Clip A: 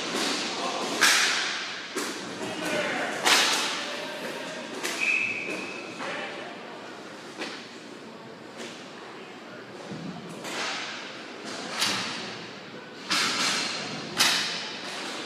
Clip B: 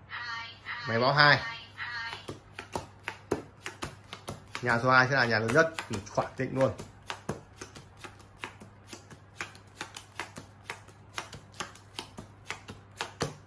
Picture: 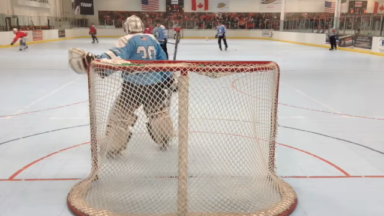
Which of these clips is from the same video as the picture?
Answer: A